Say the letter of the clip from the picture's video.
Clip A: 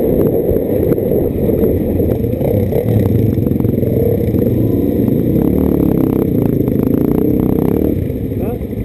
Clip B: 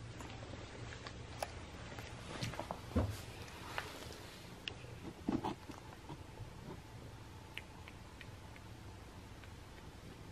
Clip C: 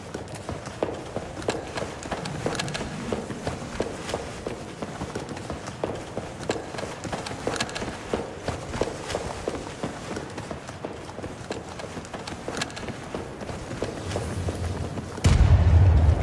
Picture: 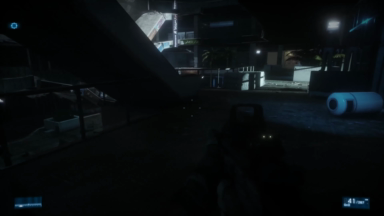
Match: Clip C